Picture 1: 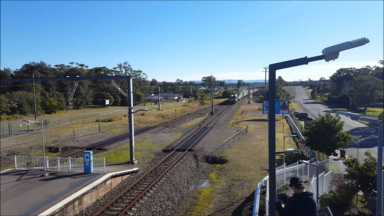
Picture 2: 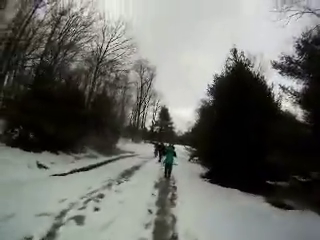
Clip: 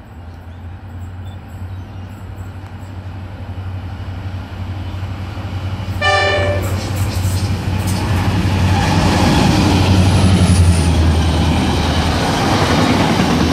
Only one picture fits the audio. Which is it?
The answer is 1